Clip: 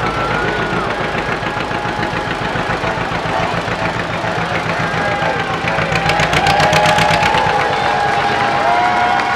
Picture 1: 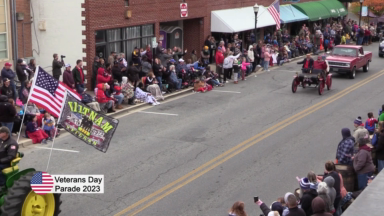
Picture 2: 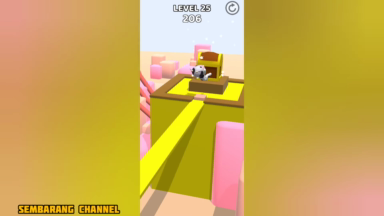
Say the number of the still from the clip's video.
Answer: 1